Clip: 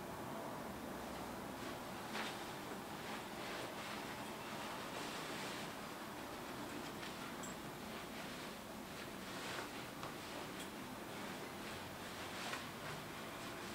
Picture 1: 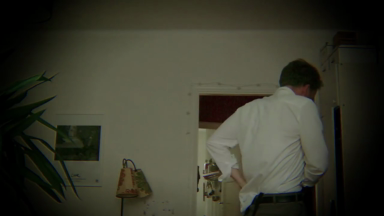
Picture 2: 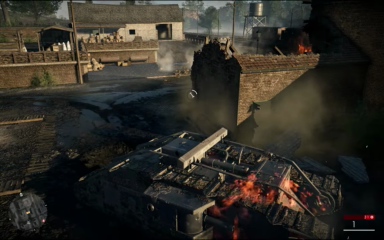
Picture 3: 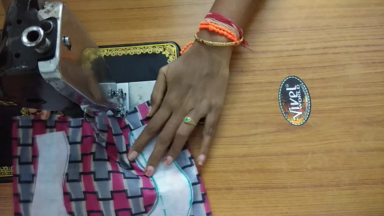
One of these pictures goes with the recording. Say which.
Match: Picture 1